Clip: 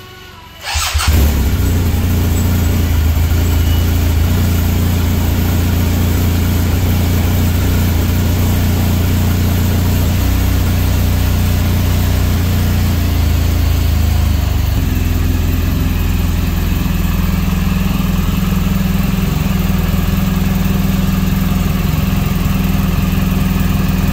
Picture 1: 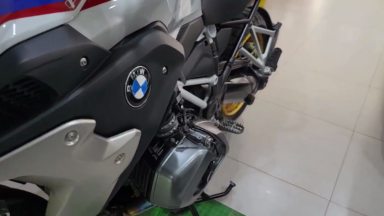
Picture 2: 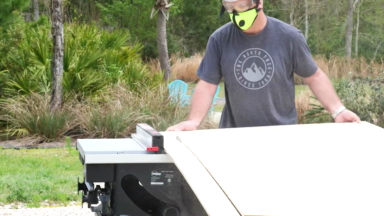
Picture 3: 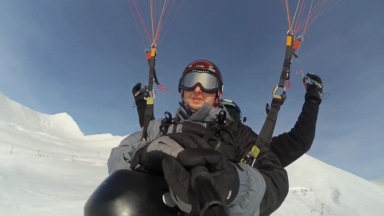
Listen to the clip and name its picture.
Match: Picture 1